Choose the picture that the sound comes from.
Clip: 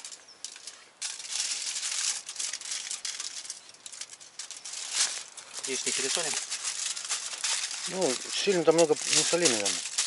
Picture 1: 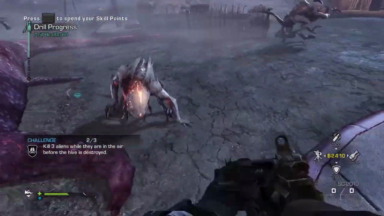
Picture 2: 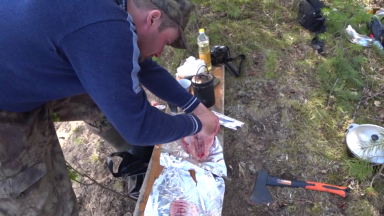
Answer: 2